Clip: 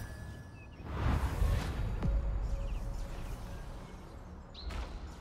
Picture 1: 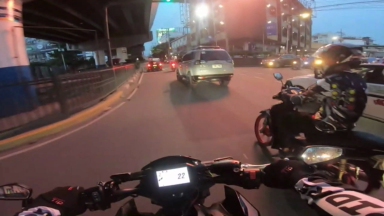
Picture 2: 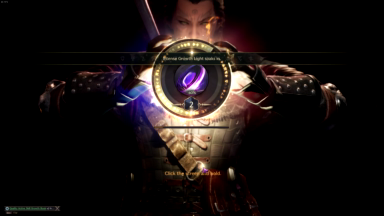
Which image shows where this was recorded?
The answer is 2